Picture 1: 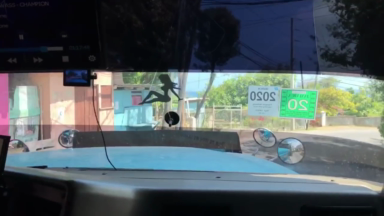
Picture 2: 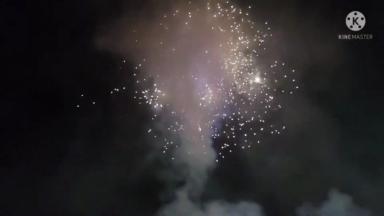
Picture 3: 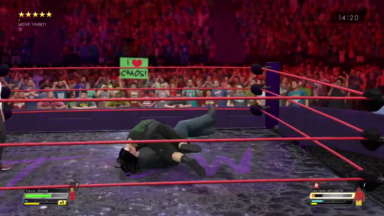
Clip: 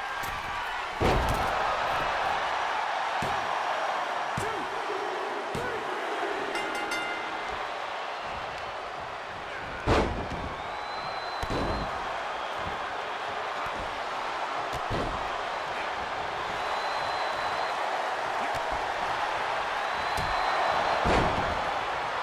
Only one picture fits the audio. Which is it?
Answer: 3